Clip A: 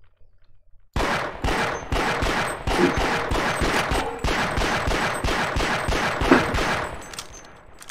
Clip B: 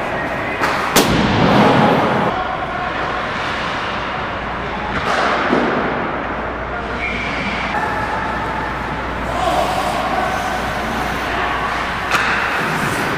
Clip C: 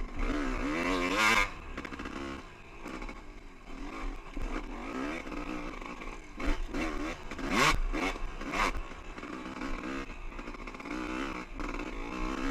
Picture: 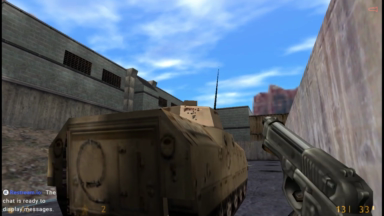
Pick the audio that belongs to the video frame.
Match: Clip A